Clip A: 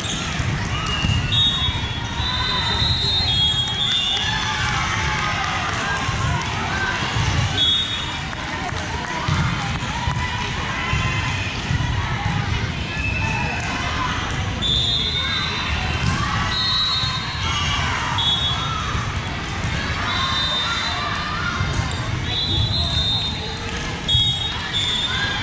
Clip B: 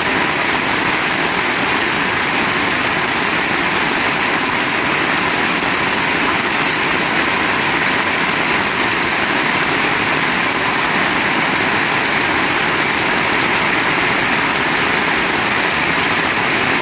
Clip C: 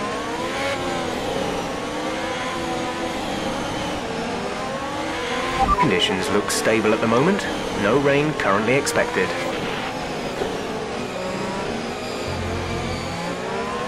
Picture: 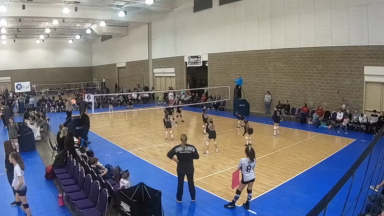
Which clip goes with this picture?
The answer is A